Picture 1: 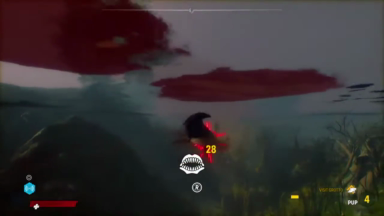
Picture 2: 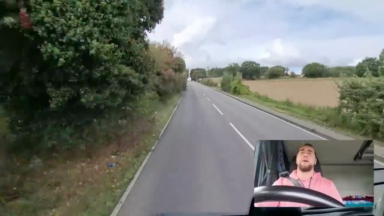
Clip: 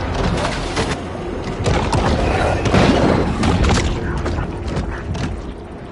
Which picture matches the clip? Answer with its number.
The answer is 1